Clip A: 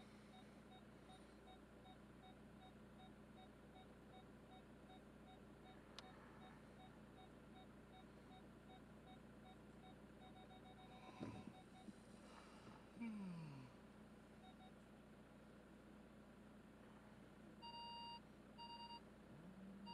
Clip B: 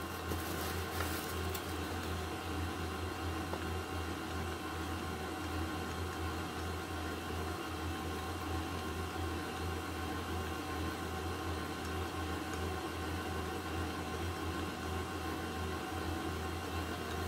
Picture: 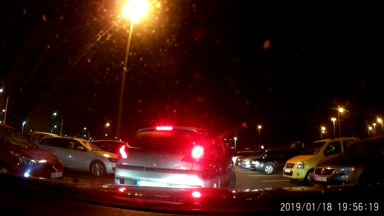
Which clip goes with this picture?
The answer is A